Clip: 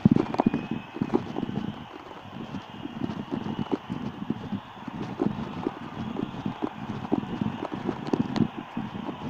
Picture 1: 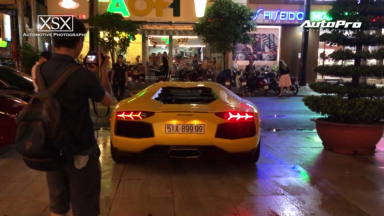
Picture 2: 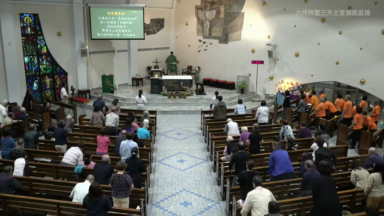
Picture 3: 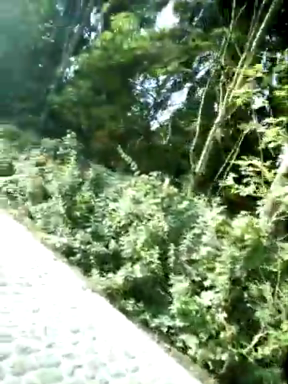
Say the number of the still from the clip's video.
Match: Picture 3